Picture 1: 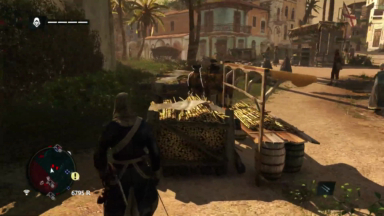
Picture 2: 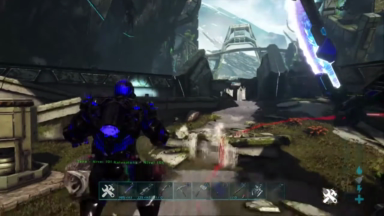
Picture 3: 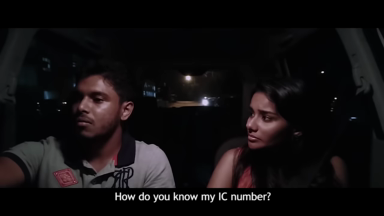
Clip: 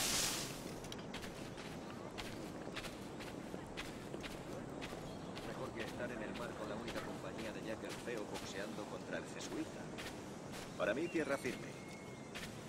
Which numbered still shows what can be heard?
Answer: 1